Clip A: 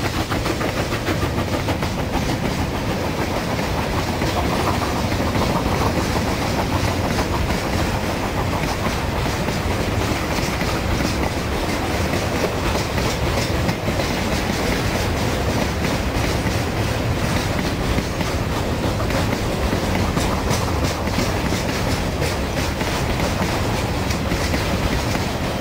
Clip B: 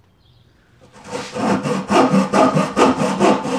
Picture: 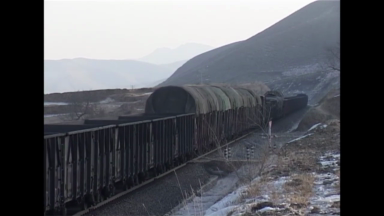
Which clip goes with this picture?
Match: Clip A